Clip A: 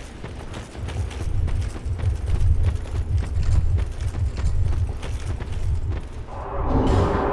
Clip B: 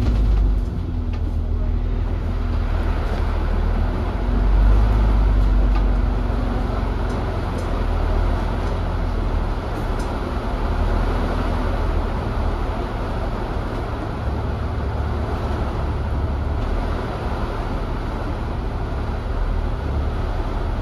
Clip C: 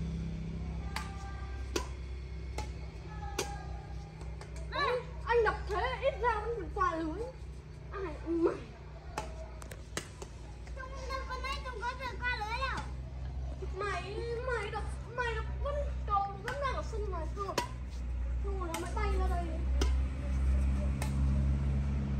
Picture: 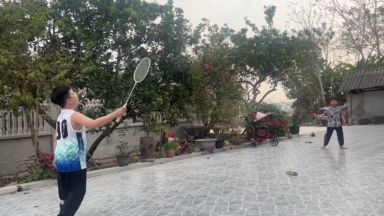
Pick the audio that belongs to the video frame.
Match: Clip C